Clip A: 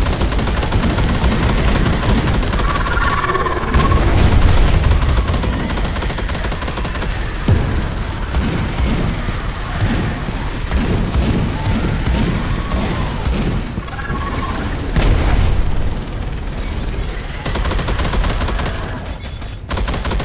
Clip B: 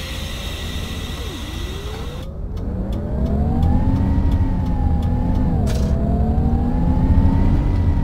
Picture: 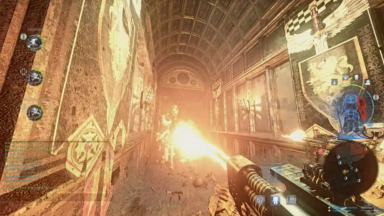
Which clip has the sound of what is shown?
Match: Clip A